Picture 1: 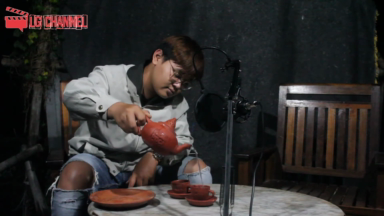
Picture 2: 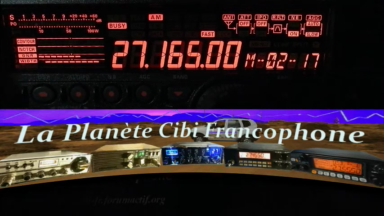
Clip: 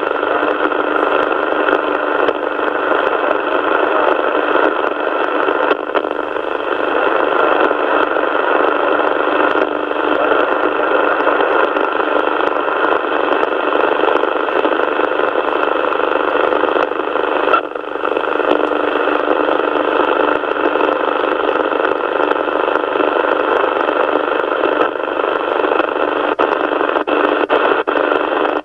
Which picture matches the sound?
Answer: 2